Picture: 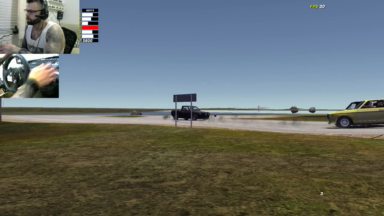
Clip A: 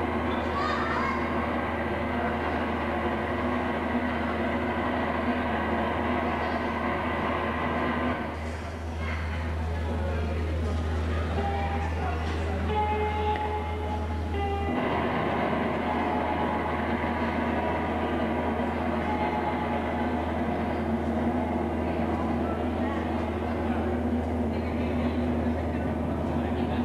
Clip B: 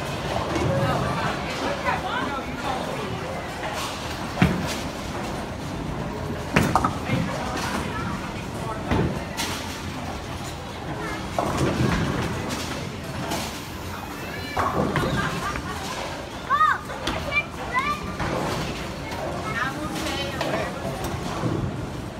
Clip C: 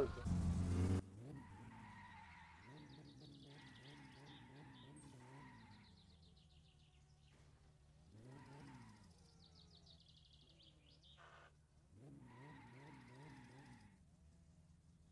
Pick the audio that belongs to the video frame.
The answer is C